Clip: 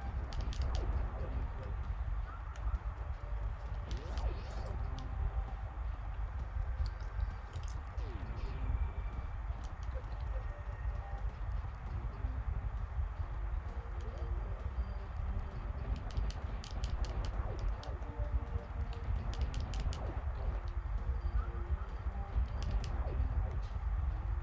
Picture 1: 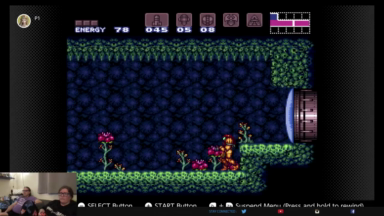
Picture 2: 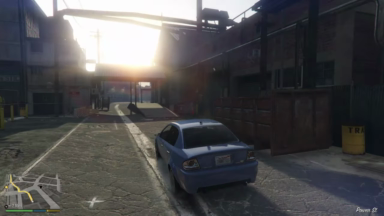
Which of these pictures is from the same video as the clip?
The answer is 1